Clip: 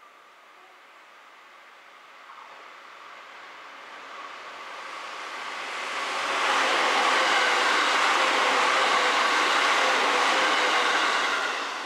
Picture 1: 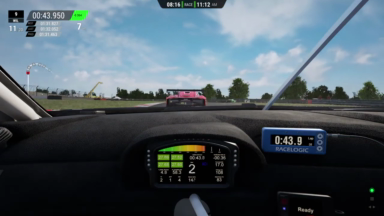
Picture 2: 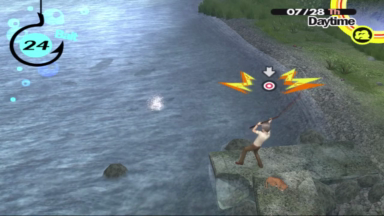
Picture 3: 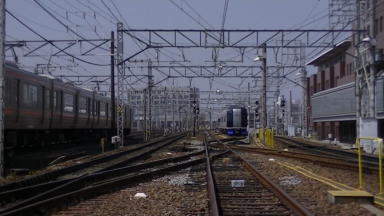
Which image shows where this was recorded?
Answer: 3